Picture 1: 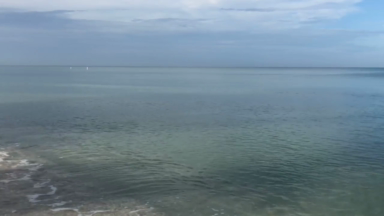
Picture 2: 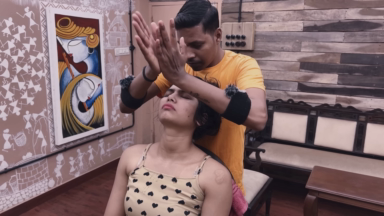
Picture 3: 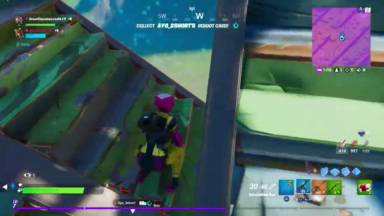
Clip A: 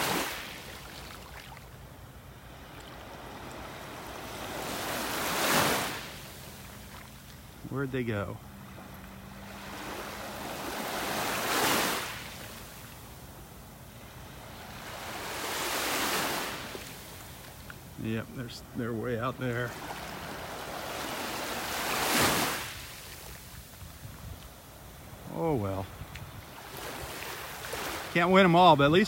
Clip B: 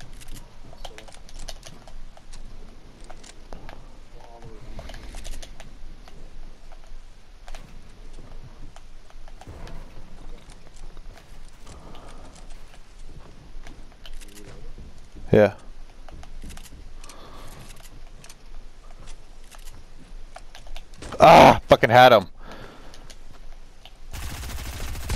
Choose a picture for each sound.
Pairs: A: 1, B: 3